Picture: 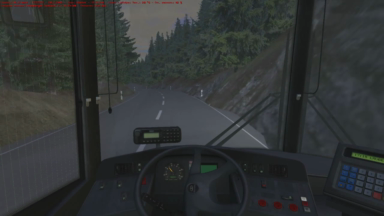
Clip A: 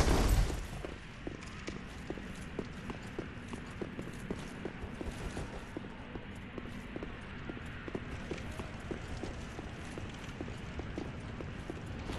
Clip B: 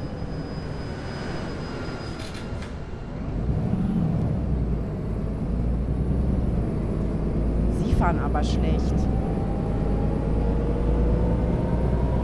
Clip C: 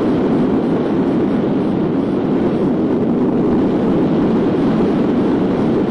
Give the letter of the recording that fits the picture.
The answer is B